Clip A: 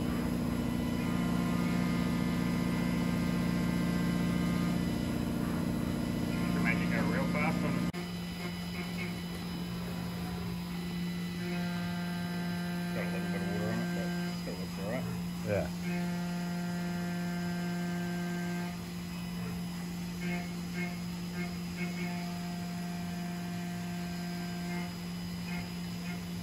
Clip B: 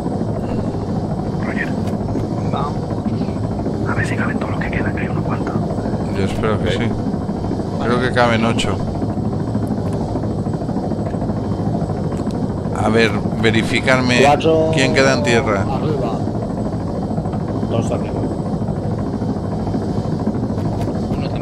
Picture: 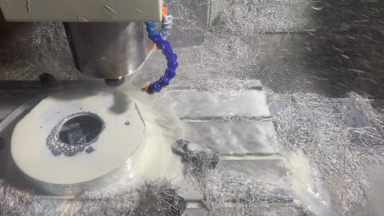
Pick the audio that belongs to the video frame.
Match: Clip A